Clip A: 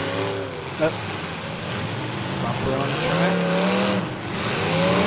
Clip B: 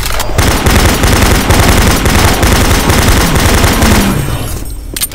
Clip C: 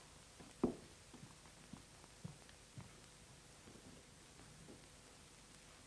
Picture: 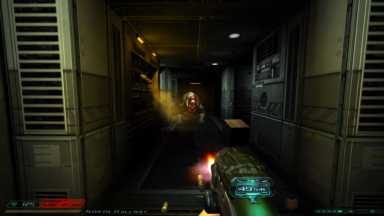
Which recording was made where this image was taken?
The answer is B